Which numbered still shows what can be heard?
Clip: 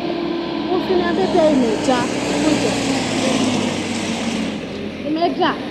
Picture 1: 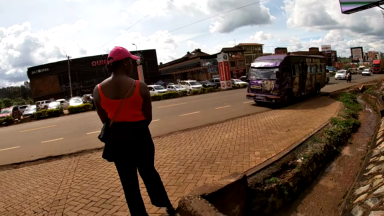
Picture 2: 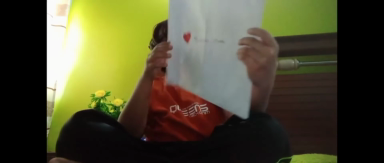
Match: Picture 1